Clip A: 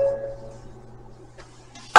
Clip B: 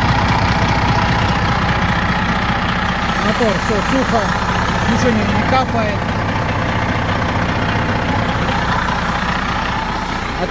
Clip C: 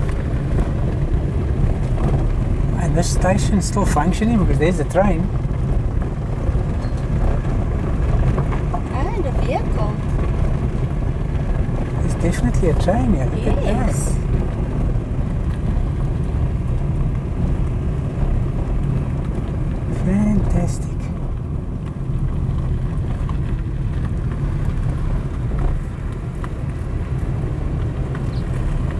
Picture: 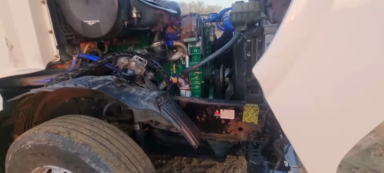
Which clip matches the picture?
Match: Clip B